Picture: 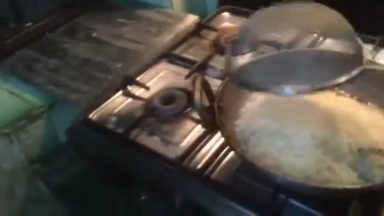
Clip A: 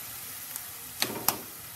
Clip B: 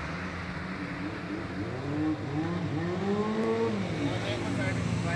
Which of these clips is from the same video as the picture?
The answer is A